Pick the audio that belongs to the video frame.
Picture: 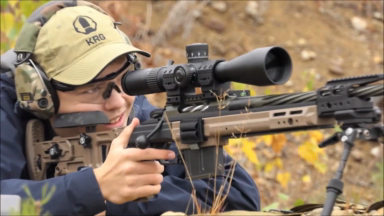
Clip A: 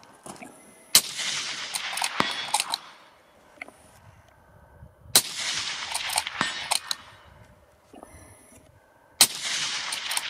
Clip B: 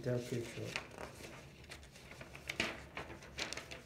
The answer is A